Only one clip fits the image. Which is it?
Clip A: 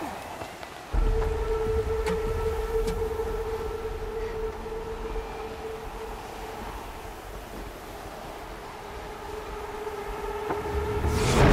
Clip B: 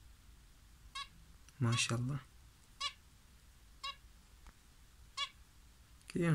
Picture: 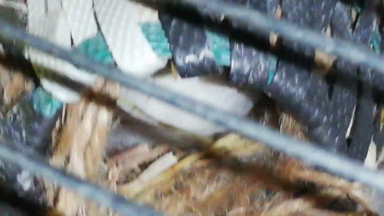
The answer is B